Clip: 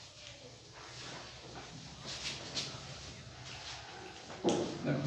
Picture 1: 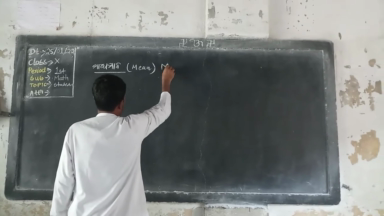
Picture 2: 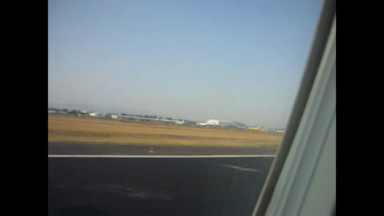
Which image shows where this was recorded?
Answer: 1